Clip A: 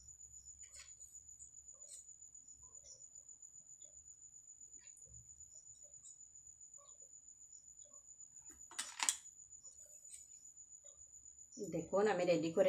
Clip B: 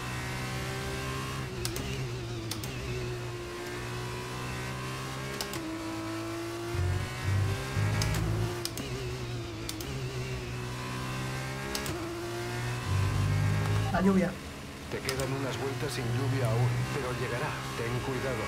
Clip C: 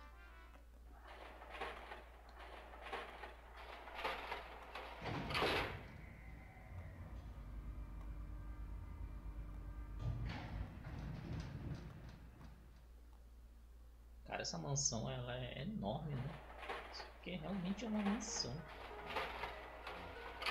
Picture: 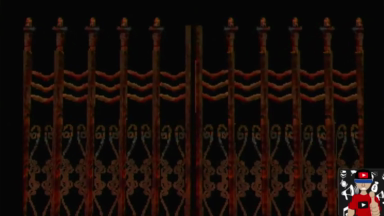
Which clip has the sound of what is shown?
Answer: C